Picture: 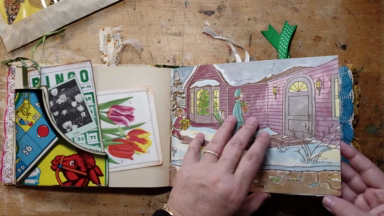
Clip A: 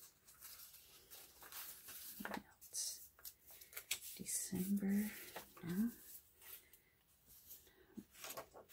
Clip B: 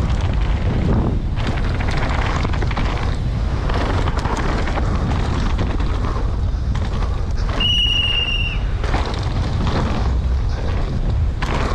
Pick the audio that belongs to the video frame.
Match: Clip A